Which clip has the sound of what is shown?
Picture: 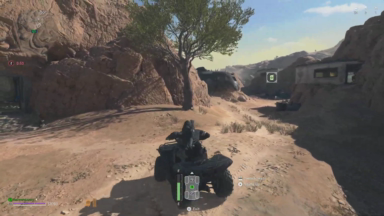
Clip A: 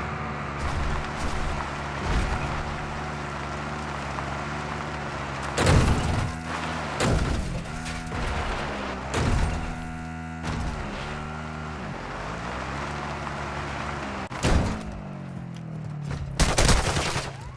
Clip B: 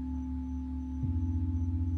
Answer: A